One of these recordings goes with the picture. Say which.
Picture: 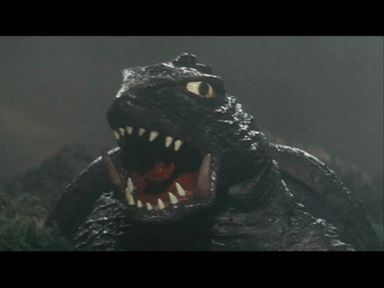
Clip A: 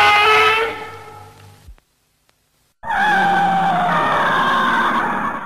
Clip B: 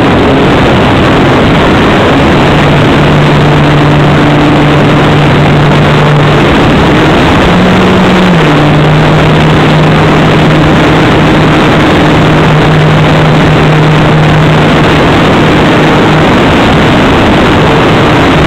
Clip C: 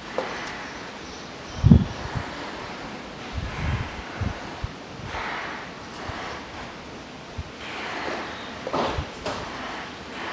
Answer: A